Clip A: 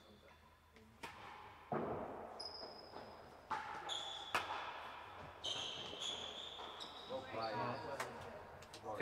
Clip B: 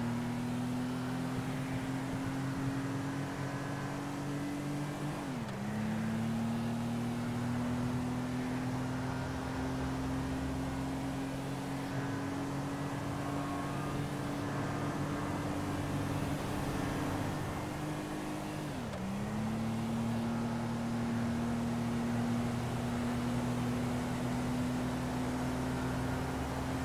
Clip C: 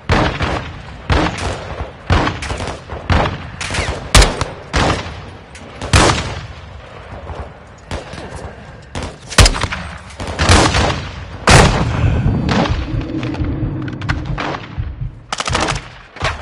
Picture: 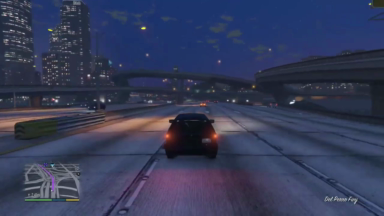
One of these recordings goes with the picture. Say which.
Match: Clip B